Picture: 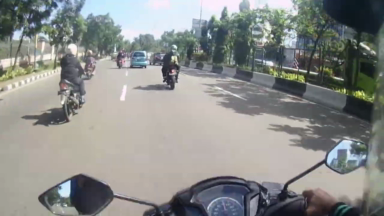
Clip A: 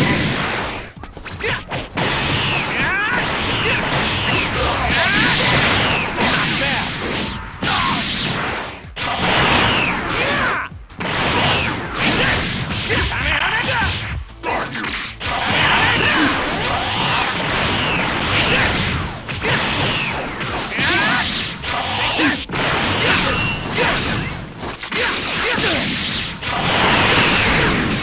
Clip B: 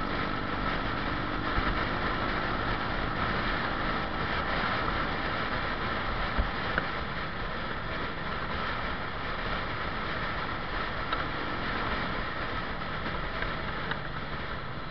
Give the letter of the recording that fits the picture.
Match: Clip B